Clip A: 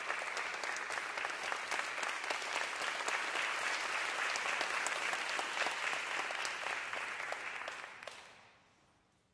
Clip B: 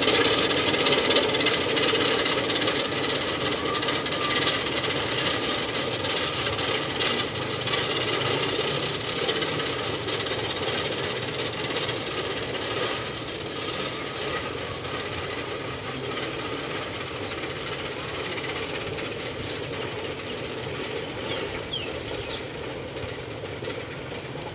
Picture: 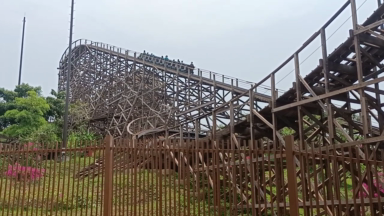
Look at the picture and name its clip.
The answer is B